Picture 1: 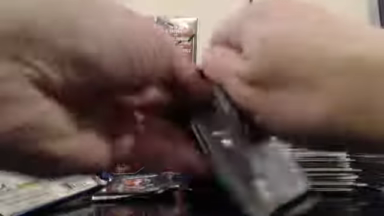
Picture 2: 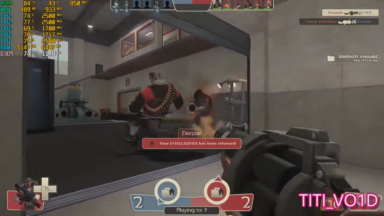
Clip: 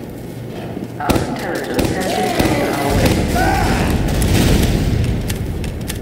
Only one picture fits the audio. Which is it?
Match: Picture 2